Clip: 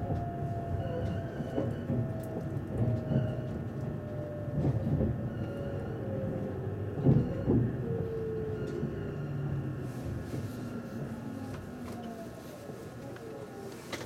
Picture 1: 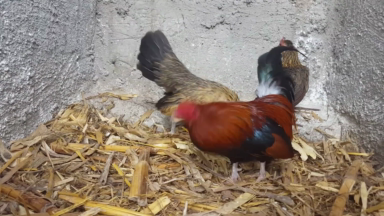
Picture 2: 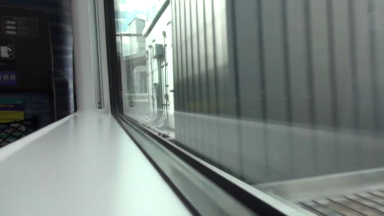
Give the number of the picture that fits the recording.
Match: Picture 2